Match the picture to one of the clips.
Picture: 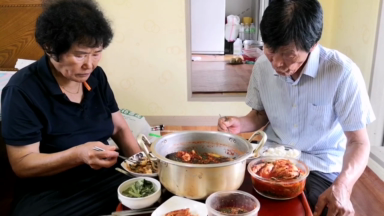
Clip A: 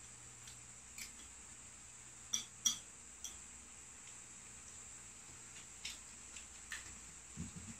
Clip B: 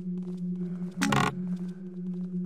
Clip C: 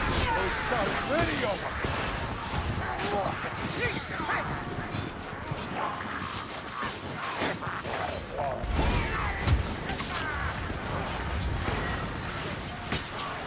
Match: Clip A